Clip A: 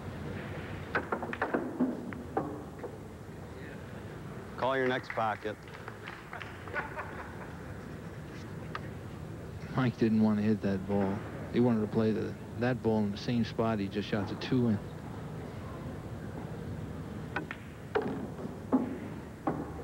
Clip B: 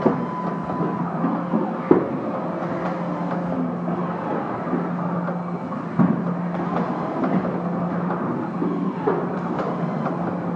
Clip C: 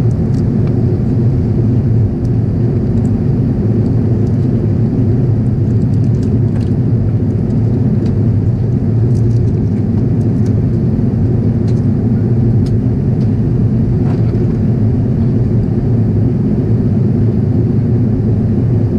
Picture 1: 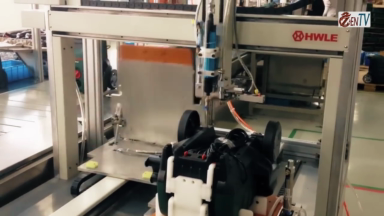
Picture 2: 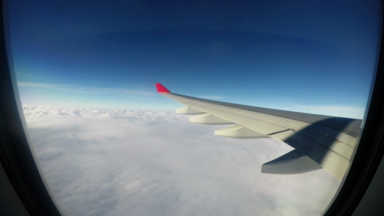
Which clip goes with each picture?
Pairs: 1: B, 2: C